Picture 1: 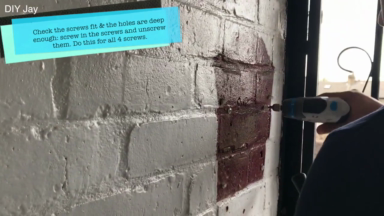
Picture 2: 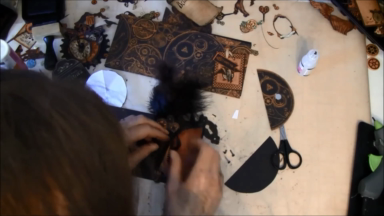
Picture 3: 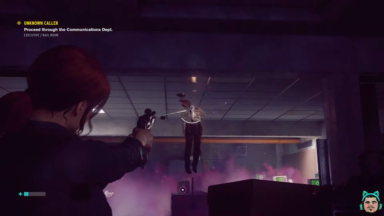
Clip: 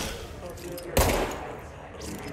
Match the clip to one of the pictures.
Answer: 3